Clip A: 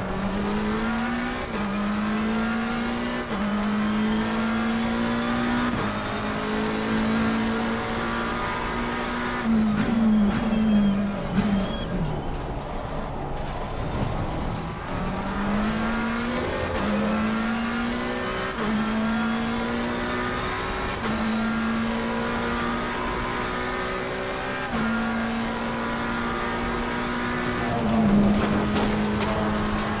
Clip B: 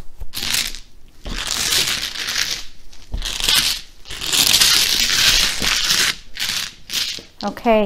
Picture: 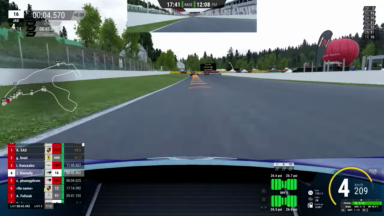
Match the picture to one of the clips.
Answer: A